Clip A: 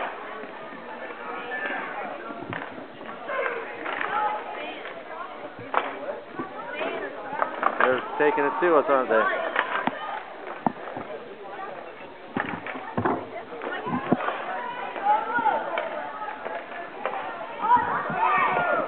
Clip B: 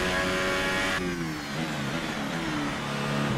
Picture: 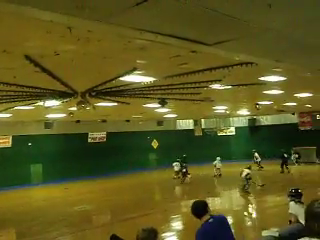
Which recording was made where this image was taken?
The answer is A